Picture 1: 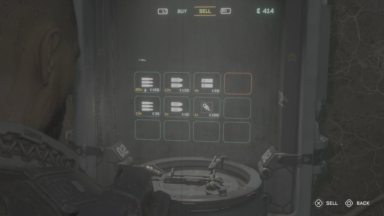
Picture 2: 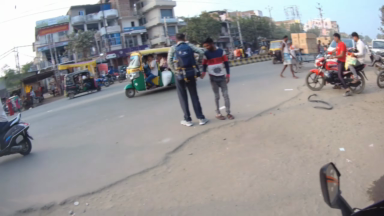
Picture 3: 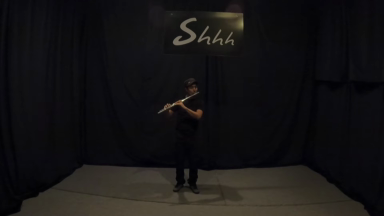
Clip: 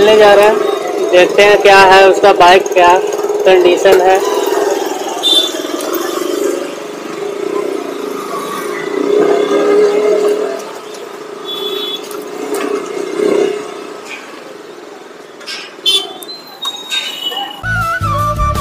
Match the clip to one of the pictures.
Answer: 2